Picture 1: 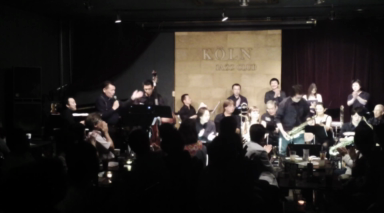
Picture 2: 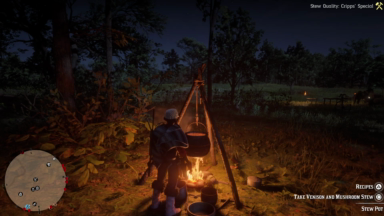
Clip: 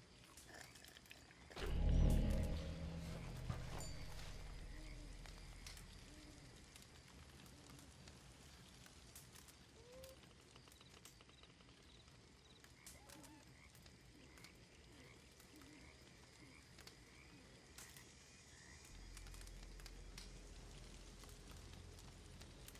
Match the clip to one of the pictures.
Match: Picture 2